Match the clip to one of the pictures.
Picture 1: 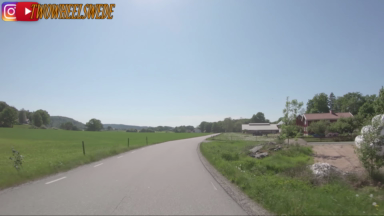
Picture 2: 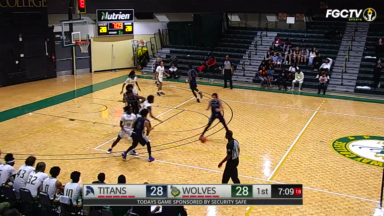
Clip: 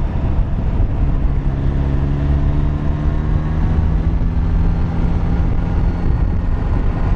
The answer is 1